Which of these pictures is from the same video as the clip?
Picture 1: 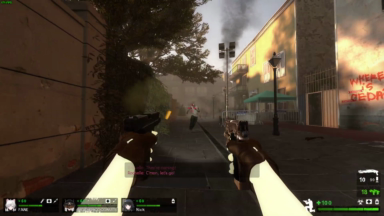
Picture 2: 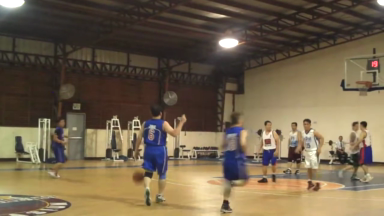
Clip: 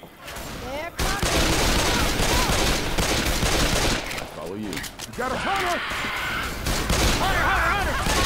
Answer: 1